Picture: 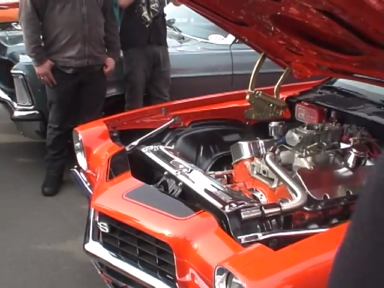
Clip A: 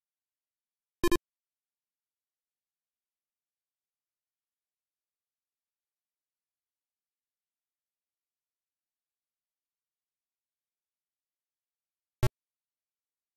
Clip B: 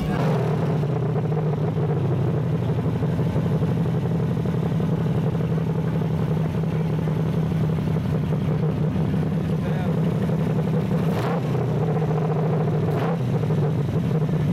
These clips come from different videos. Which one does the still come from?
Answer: B